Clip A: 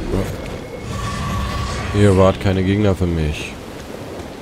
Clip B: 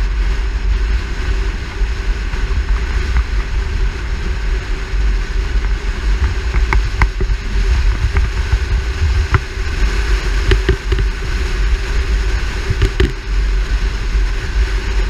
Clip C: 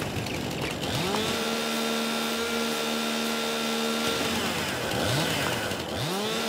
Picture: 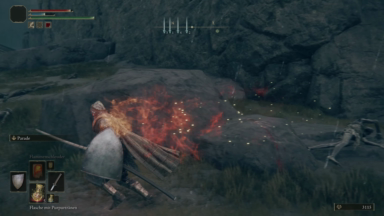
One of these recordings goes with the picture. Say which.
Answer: A